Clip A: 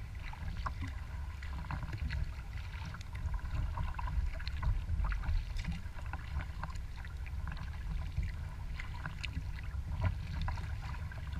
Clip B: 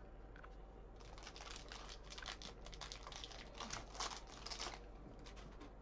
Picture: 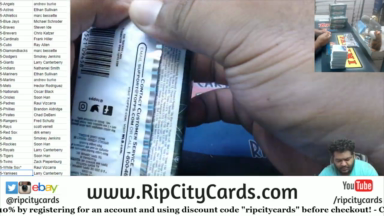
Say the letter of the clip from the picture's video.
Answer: B